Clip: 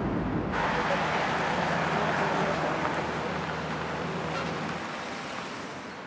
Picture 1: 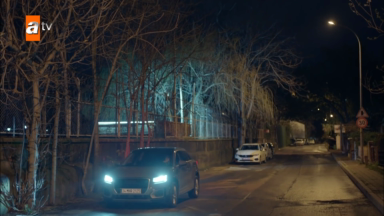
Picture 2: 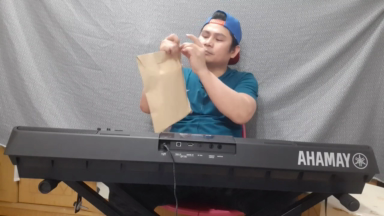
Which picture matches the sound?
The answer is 1